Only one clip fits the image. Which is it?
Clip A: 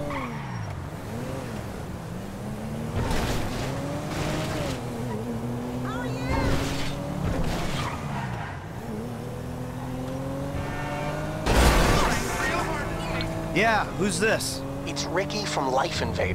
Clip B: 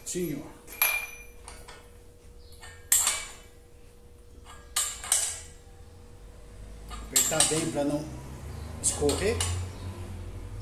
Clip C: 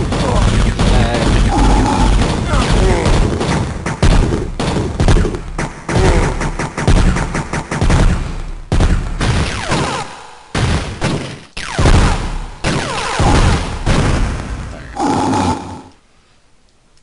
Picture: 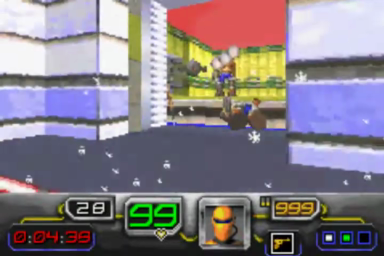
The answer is C